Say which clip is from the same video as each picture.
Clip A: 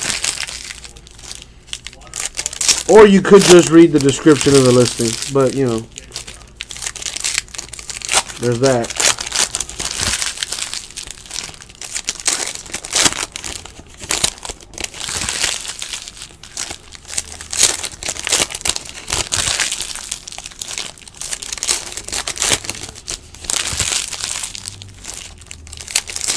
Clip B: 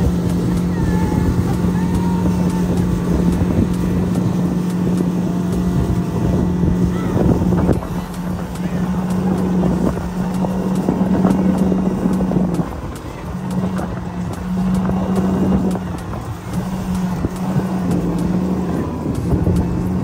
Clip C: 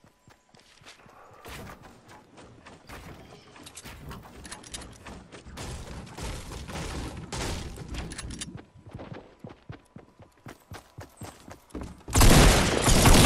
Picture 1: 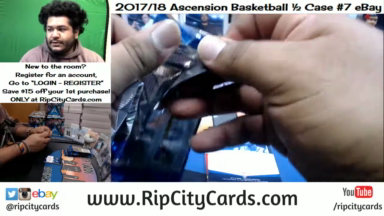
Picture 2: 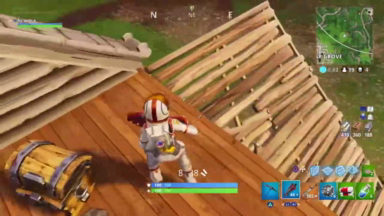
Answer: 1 A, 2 C